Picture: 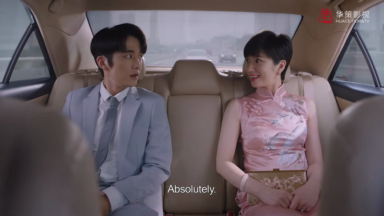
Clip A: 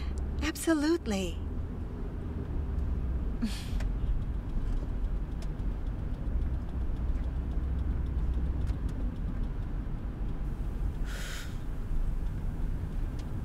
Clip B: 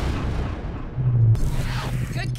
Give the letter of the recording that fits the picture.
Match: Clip A